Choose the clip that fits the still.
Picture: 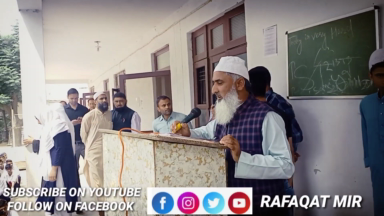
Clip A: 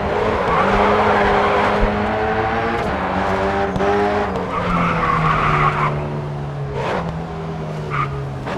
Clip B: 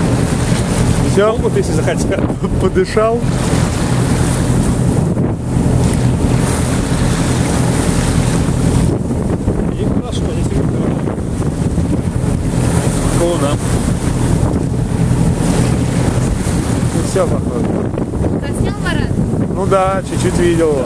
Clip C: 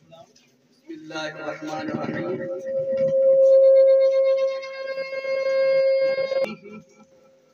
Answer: C